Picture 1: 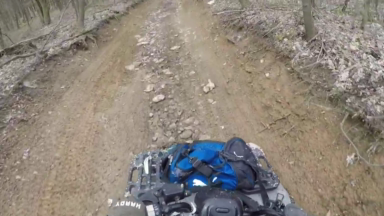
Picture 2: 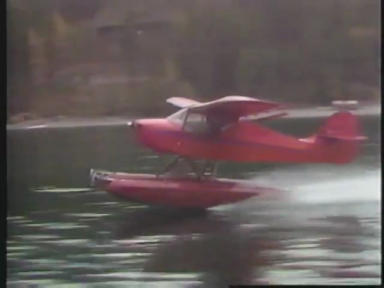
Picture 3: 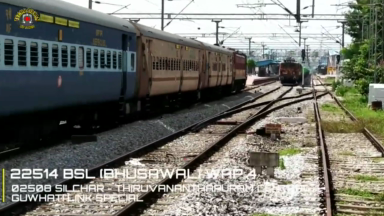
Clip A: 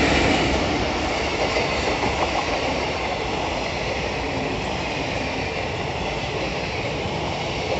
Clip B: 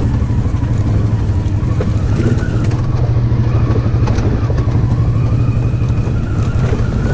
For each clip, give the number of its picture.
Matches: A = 3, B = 1